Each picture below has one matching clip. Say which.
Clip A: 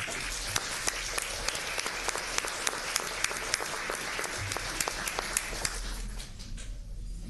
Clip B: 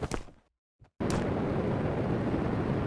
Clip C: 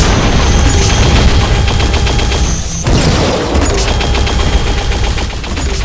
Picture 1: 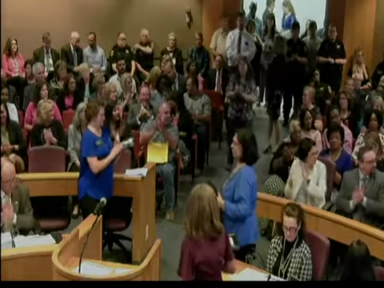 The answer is A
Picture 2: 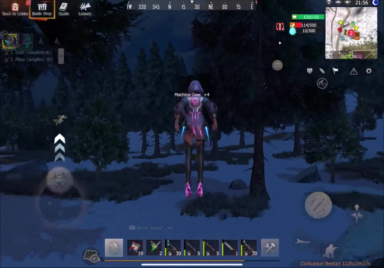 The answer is B